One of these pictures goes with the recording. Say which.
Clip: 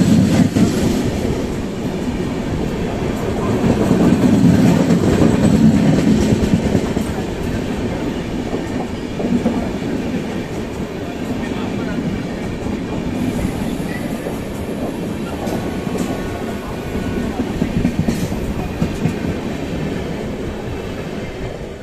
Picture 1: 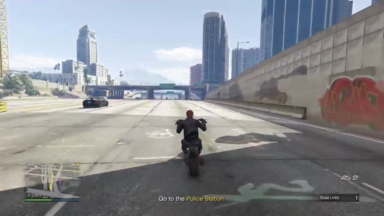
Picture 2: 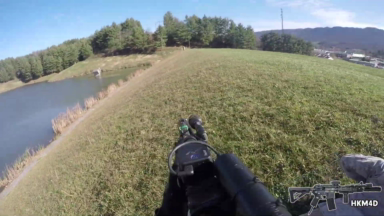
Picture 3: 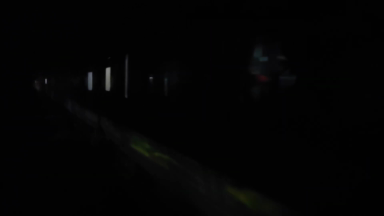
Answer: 3